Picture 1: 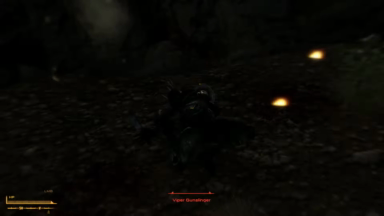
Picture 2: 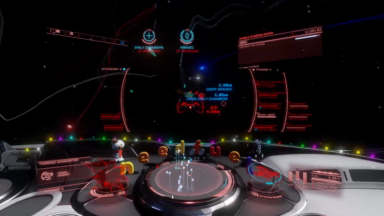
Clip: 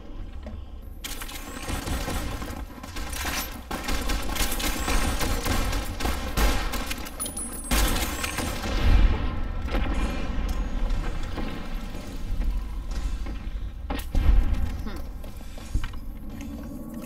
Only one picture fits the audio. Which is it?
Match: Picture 1